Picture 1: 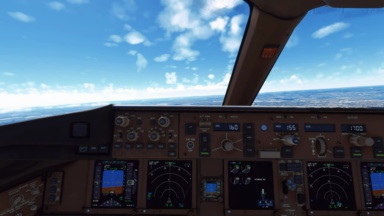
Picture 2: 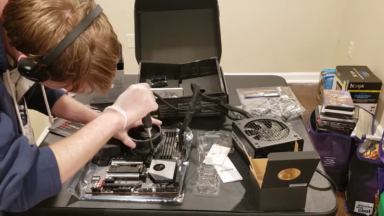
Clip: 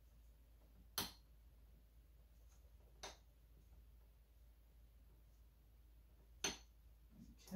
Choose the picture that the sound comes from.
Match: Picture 2